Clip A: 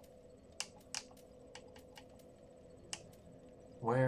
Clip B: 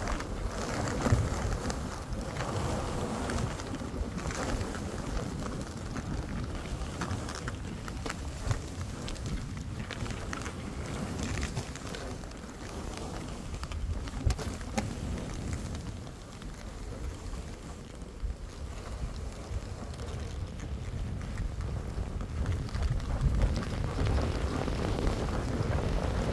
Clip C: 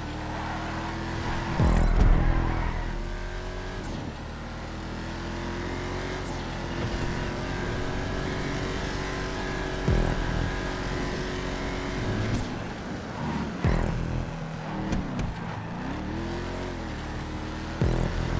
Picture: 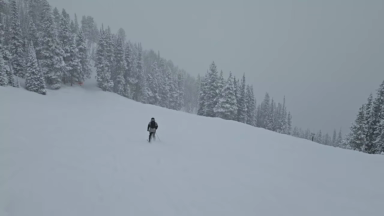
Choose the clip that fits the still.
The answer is B